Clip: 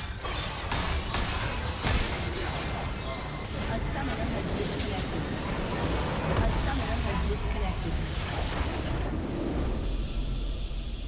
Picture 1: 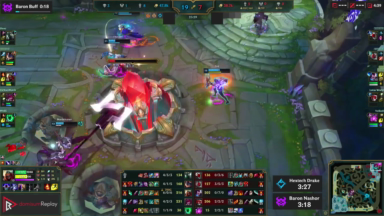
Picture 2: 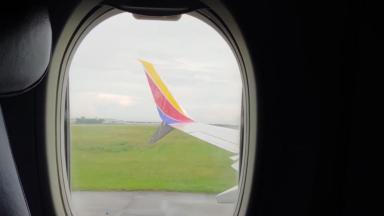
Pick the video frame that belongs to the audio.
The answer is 1